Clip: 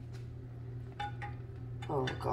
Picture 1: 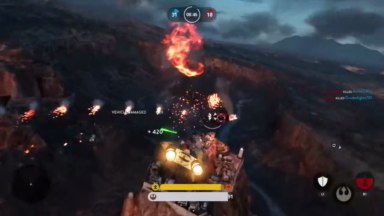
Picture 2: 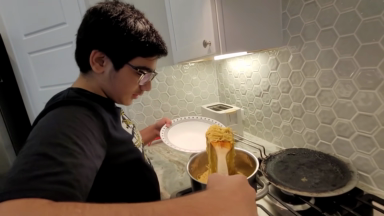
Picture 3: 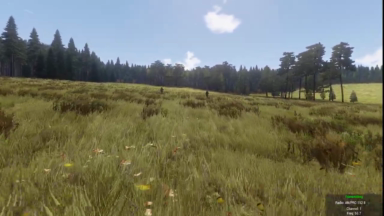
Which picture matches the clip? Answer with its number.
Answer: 2